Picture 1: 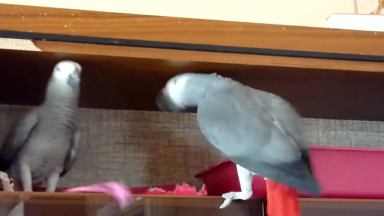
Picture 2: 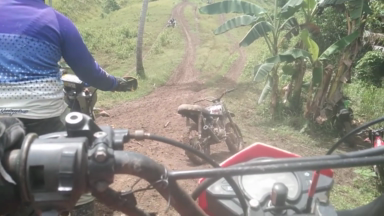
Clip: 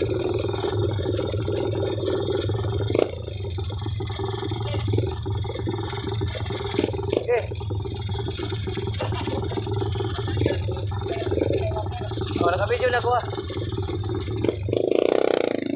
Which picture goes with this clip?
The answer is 2